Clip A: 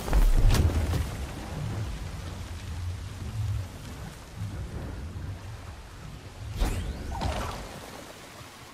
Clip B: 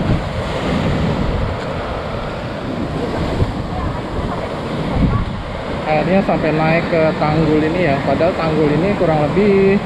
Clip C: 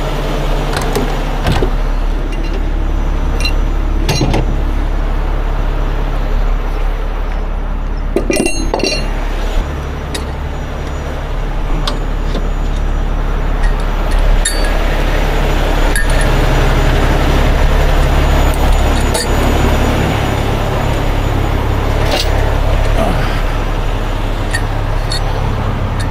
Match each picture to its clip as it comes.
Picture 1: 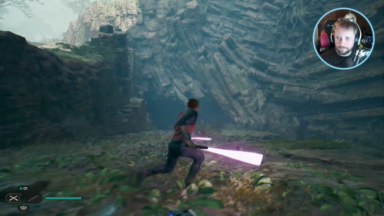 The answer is A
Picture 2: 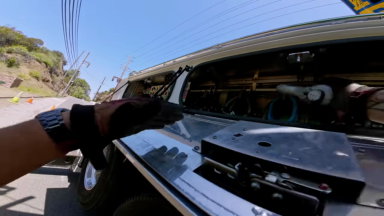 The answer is C